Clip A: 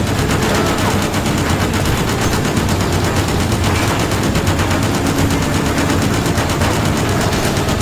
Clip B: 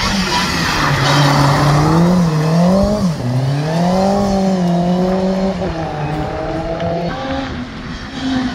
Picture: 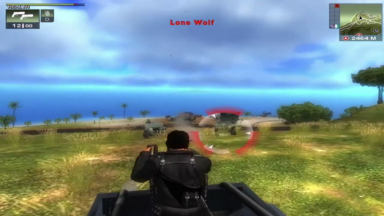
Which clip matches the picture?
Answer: A